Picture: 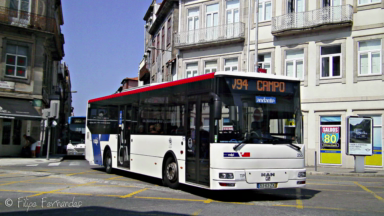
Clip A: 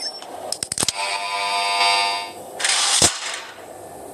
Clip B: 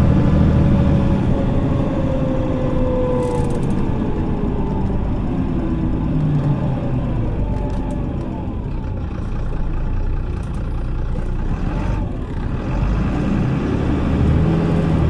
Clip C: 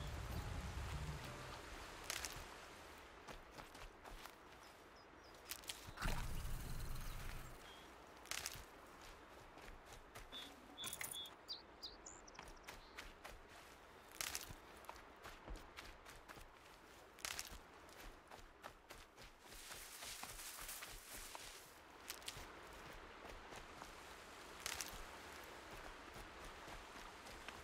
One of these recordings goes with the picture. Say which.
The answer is B